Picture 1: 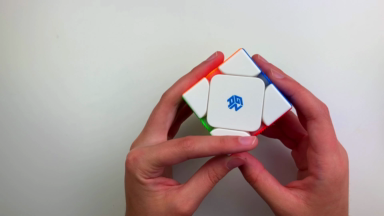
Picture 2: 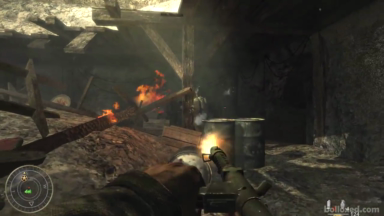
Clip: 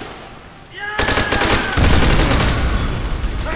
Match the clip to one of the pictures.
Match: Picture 2